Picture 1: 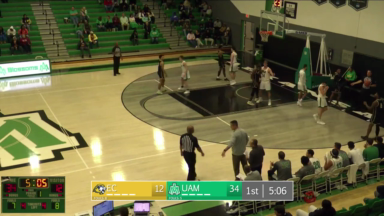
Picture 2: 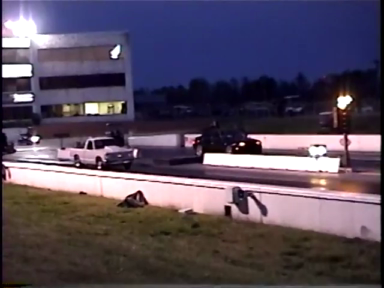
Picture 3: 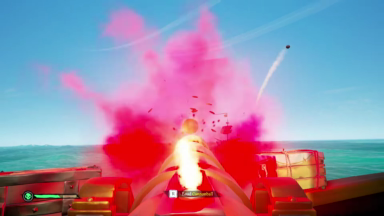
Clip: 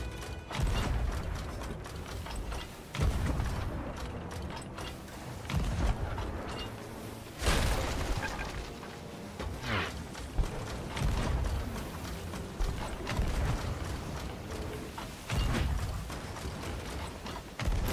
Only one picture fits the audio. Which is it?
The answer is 3